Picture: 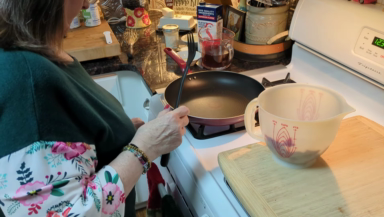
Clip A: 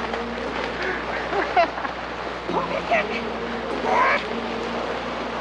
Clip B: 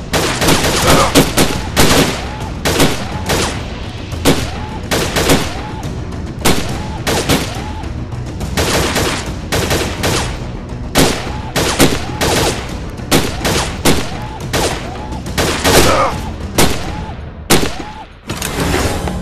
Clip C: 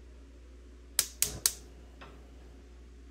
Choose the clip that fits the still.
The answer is C